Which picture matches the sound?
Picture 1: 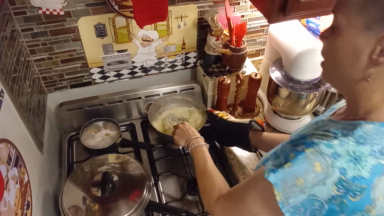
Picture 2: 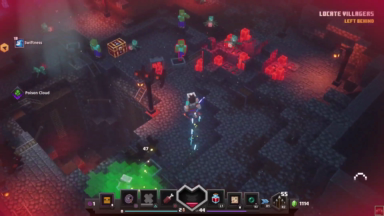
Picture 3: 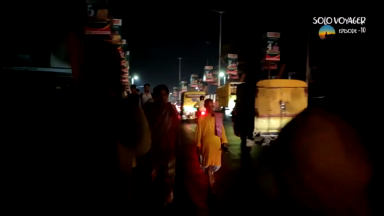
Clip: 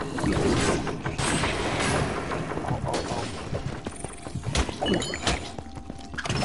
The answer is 2